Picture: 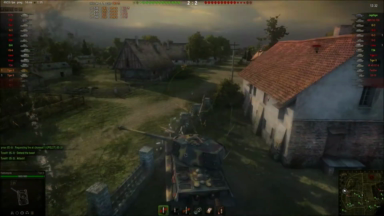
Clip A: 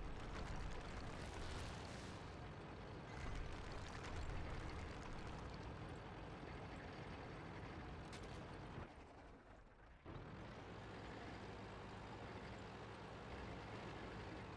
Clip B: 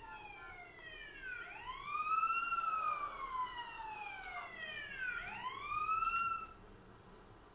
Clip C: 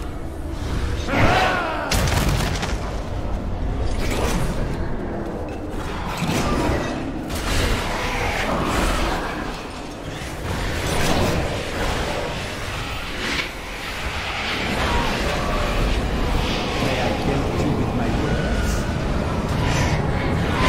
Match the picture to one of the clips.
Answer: A